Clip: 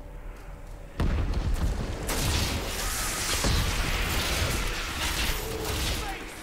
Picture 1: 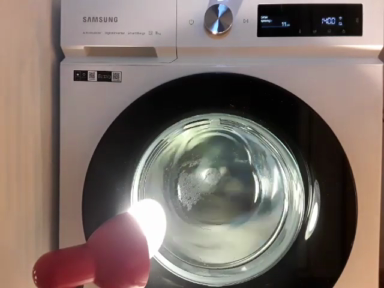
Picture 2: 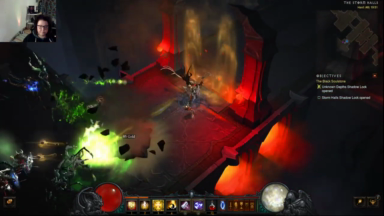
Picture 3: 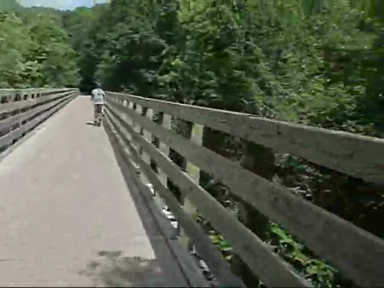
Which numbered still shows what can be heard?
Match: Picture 2